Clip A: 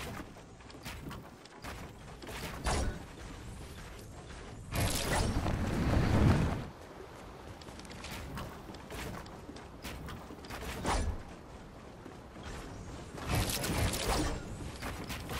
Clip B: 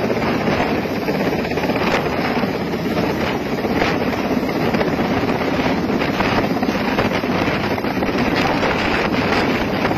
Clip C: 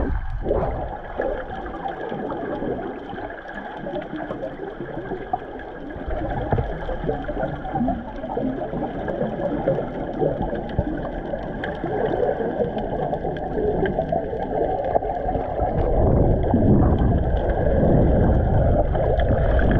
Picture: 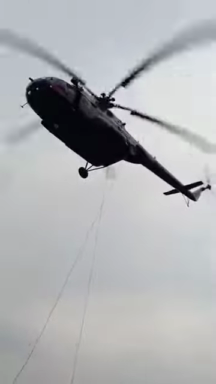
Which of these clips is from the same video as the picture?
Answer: B